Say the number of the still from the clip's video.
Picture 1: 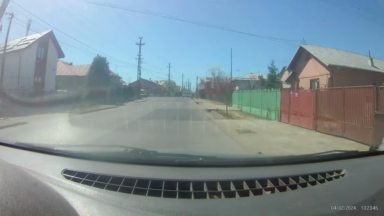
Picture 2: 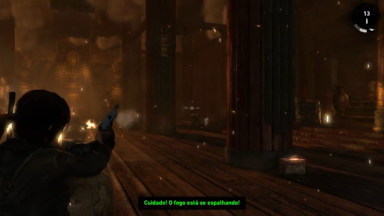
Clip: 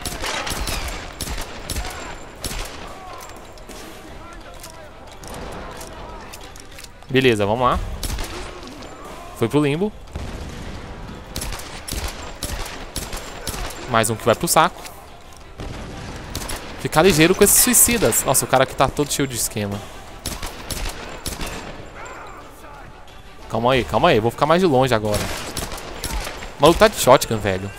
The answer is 2